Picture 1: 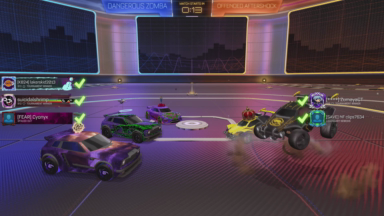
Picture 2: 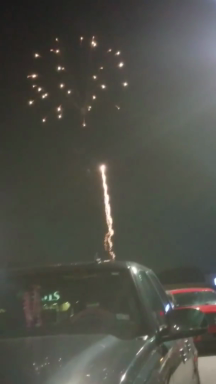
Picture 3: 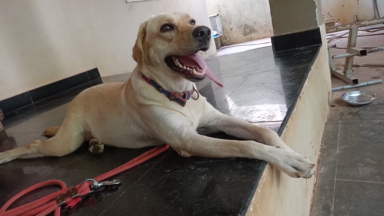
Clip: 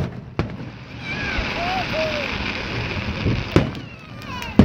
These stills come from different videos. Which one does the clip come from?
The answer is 2